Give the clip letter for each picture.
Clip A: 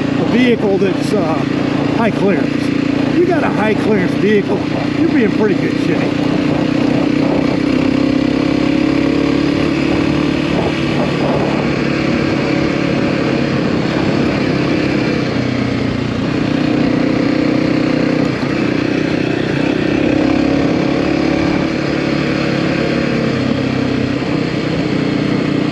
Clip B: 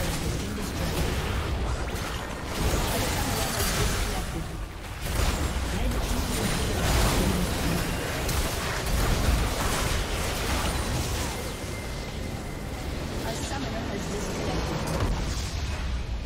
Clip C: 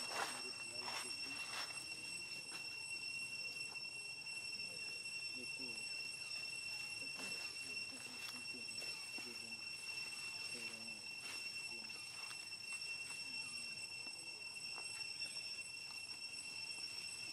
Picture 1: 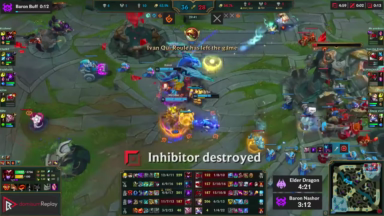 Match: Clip B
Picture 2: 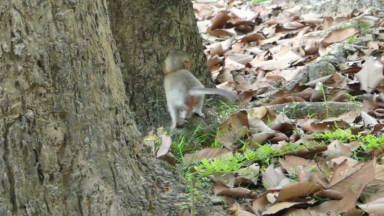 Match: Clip C